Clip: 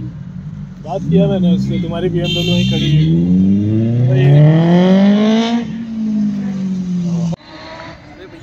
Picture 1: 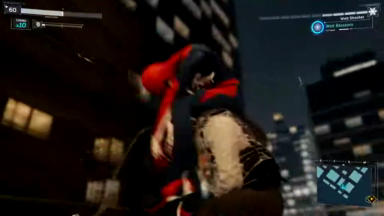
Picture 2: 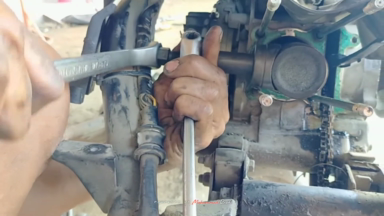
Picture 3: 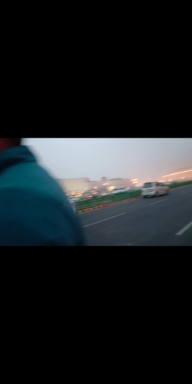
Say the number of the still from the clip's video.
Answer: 3